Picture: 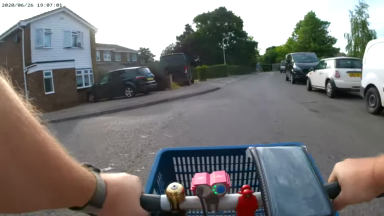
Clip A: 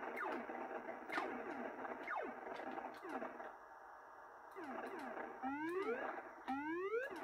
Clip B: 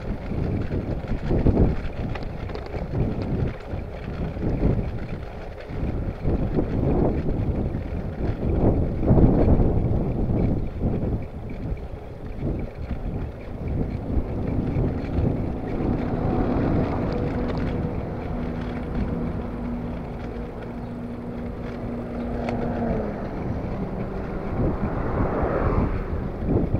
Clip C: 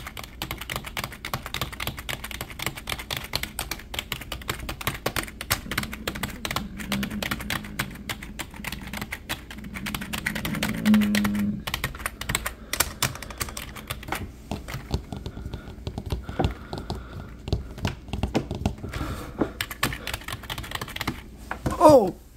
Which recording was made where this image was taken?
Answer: B